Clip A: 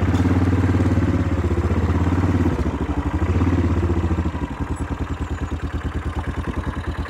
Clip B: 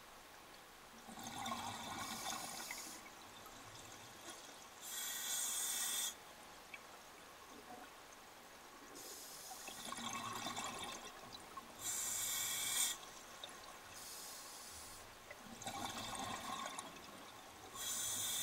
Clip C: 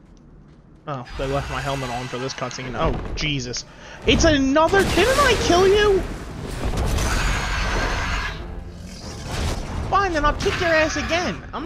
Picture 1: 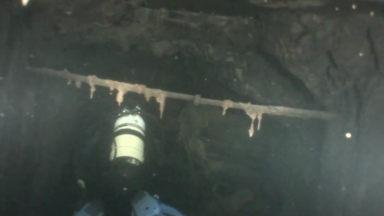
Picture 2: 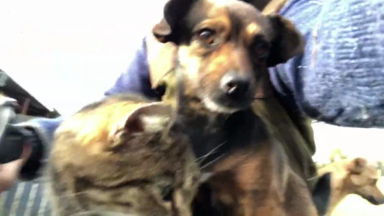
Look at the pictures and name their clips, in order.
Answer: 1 B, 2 A